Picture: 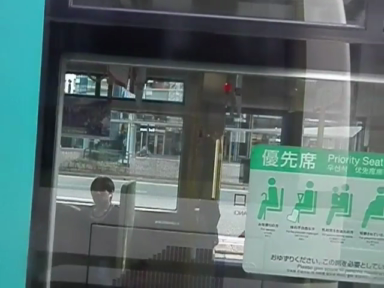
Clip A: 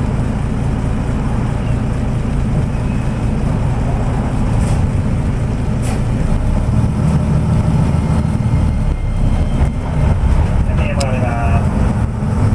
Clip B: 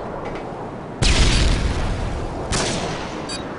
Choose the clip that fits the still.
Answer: A